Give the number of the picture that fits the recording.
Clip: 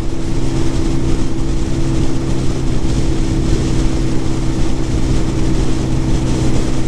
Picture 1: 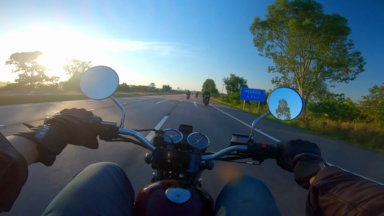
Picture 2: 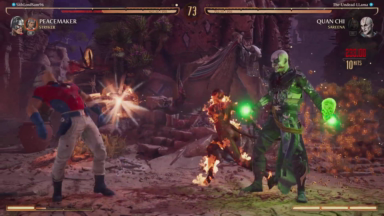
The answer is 1